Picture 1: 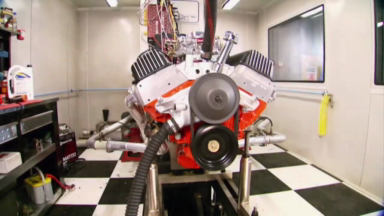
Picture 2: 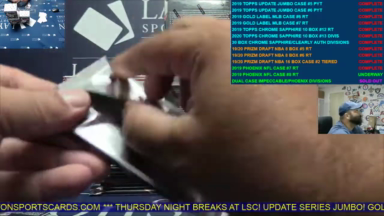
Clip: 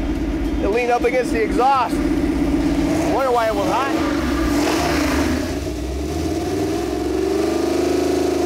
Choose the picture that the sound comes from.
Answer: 1